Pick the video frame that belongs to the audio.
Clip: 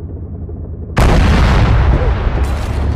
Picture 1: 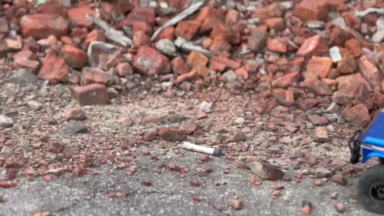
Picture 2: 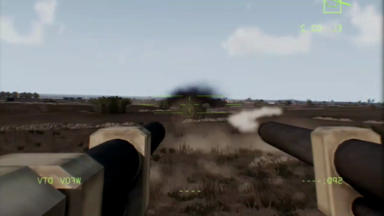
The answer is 2